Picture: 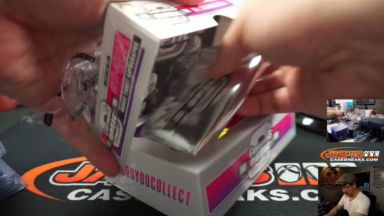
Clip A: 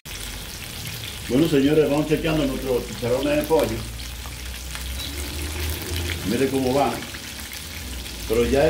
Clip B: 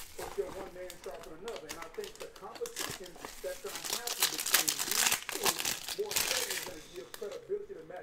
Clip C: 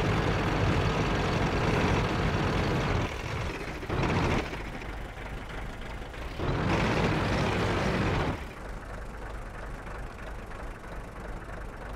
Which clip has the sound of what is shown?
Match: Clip B